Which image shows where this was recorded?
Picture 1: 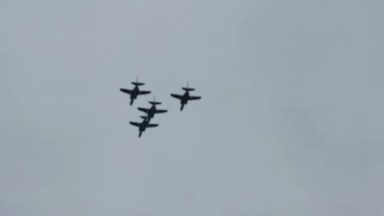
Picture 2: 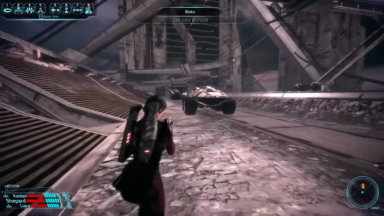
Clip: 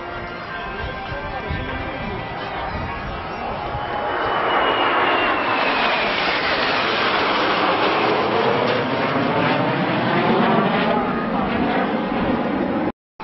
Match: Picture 1